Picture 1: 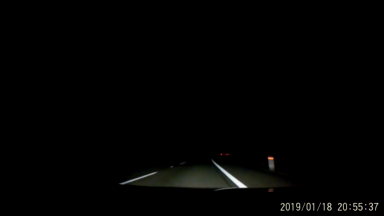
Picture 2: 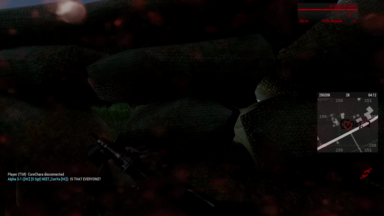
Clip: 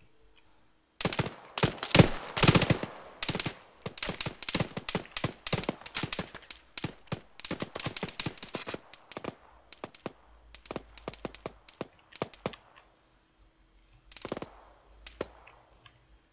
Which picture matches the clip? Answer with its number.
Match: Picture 2